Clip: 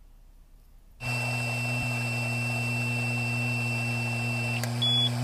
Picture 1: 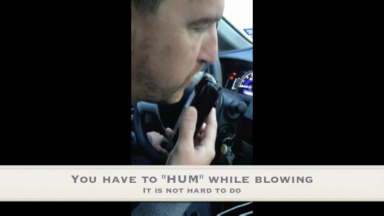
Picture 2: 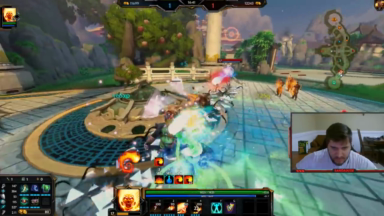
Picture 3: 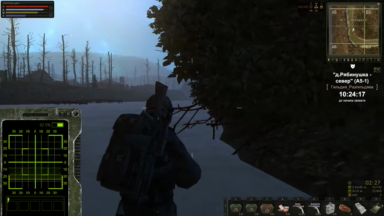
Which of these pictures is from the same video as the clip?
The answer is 1